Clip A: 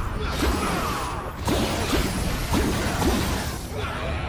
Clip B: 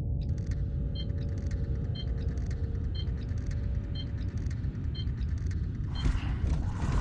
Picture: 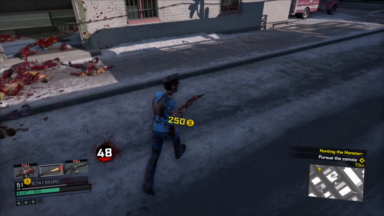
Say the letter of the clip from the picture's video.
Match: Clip A